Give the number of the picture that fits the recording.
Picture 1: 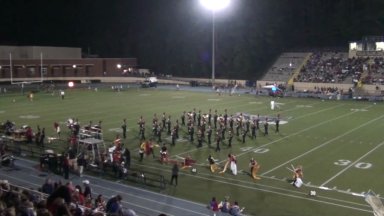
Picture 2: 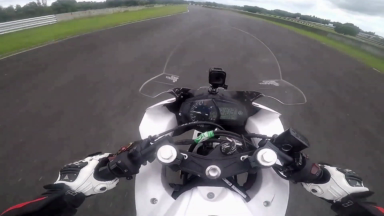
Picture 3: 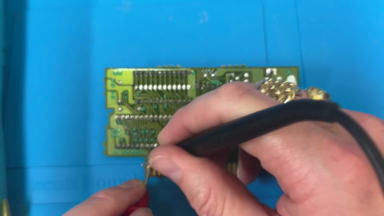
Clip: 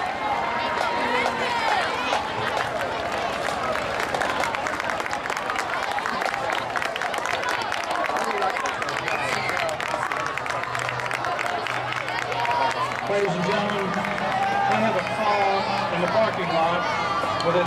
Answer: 1